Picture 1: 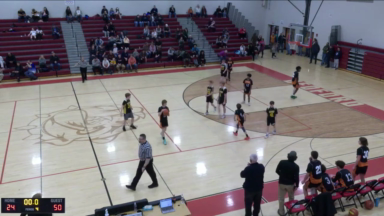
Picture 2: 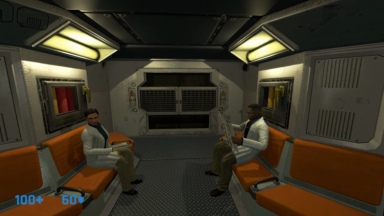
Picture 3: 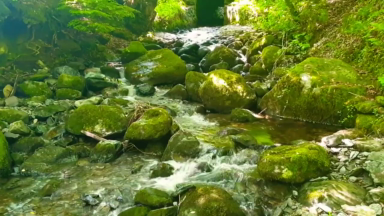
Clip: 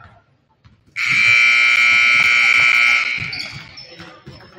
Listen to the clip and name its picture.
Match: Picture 1